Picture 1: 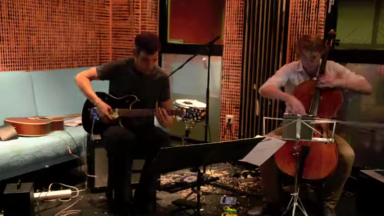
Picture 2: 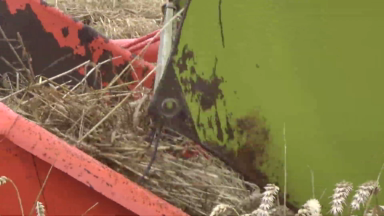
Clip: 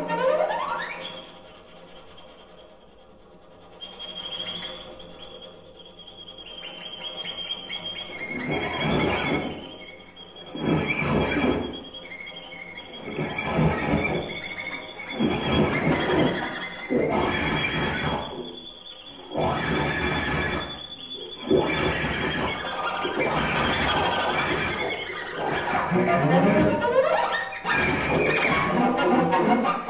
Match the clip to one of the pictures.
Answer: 1